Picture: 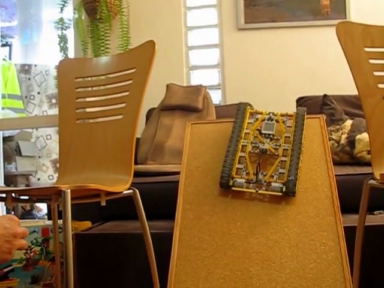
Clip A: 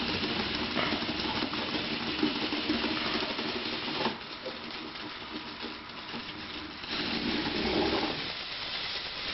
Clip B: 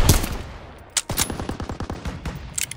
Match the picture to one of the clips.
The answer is A